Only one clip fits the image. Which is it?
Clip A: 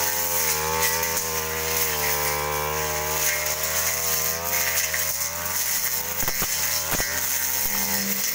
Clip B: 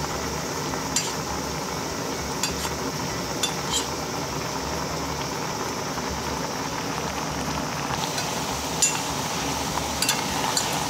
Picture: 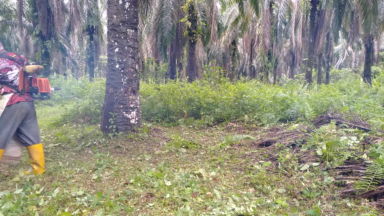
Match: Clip A